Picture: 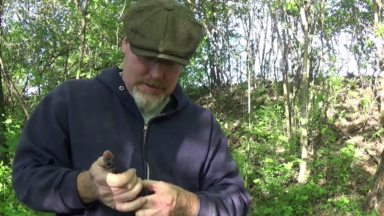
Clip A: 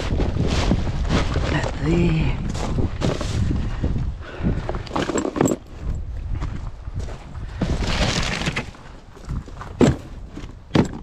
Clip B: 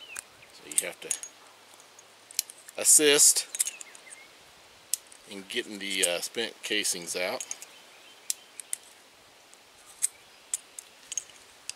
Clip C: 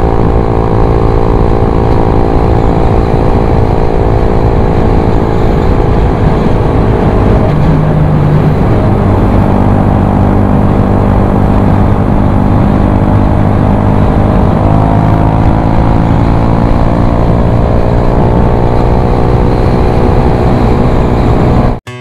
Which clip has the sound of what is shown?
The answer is B